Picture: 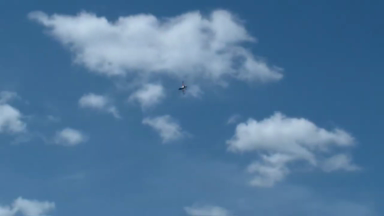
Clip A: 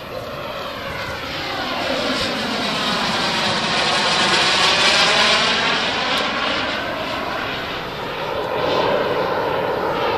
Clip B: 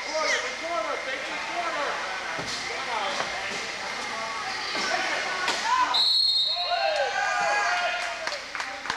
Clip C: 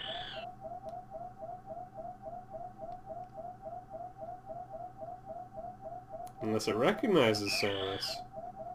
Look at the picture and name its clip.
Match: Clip A